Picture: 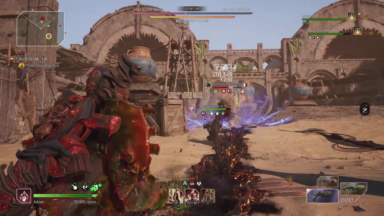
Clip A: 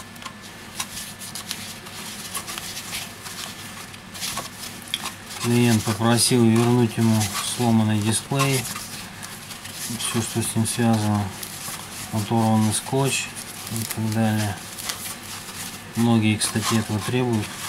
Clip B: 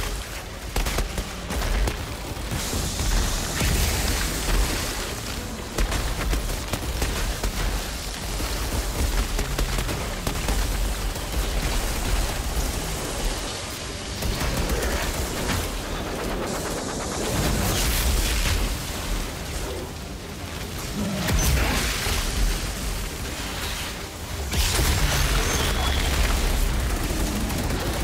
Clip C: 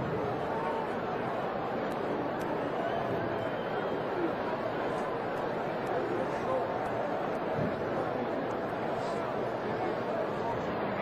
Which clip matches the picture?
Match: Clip B